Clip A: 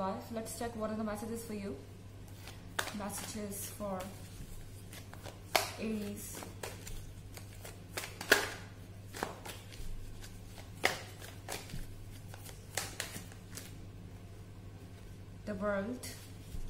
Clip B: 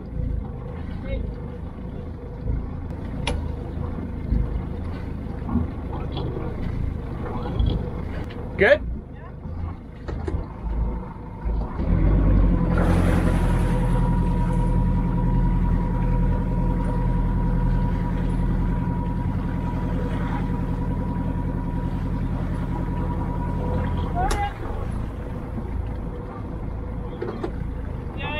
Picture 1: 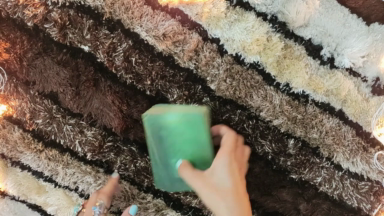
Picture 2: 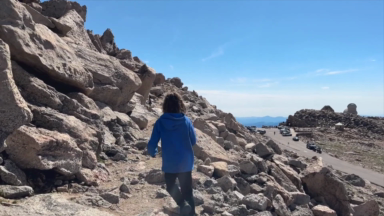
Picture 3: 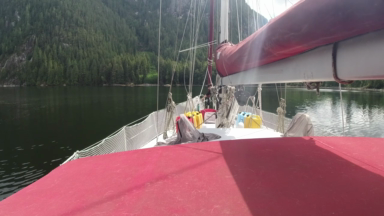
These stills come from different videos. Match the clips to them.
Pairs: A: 1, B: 3